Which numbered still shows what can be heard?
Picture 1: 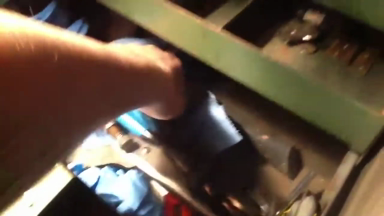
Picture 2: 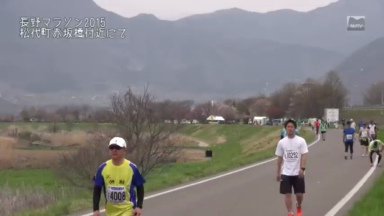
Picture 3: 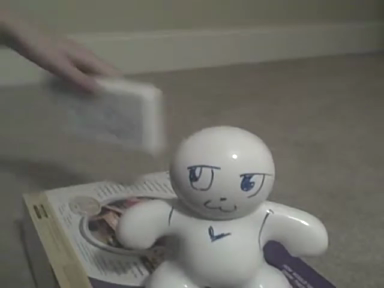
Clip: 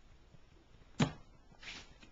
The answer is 3